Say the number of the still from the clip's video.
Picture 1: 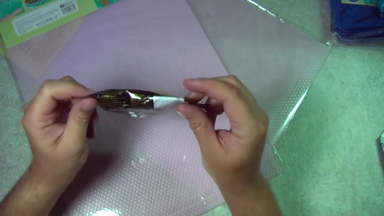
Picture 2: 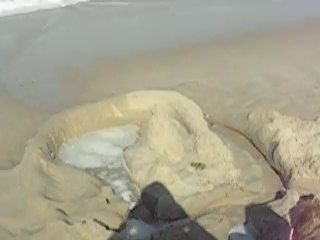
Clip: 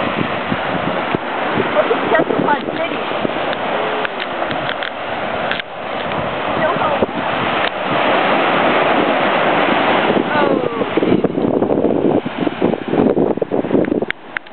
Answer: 2